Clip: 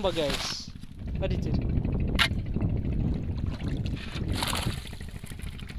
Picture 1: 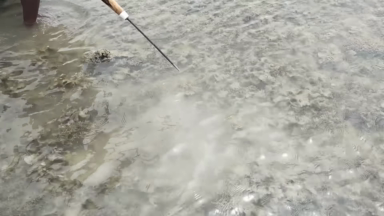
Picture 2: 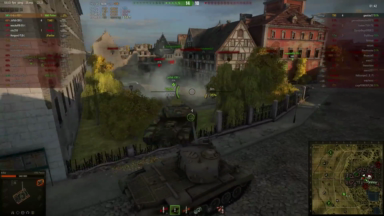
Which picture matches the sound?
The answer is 1